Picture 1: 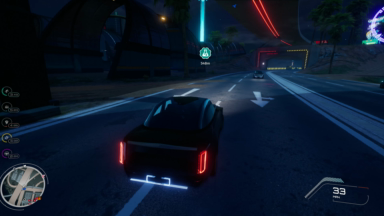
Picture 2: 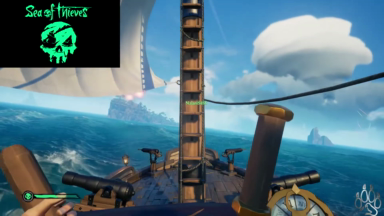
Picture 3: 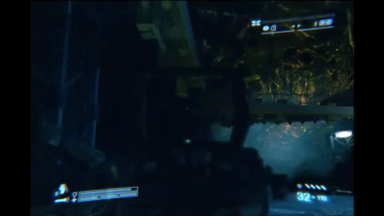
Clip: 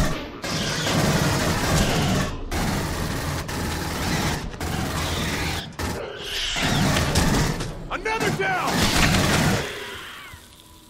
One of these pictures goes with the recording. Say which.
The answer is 3